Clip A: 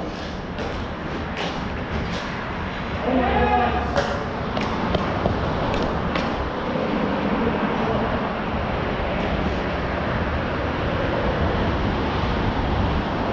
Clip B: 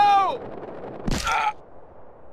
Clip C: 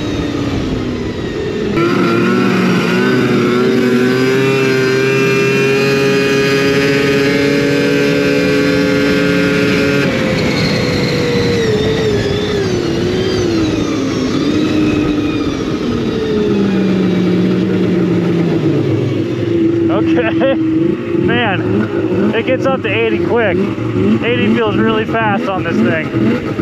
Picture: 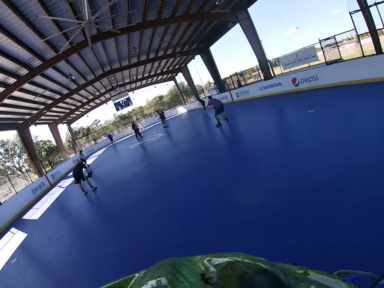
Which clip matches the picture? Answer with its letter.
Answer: A